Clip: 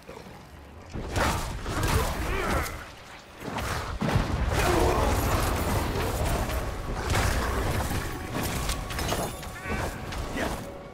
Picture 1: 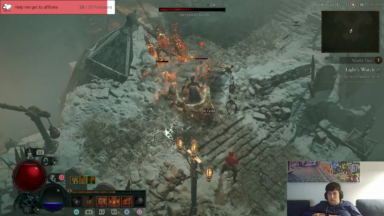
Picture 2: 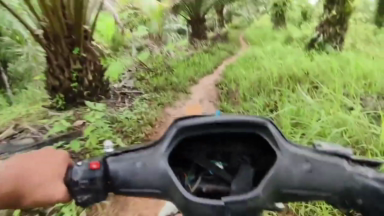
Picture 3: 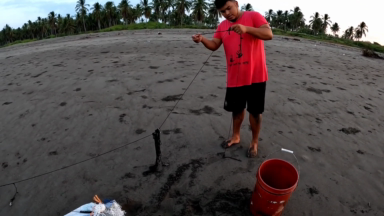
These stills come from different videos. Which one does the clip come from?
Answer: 1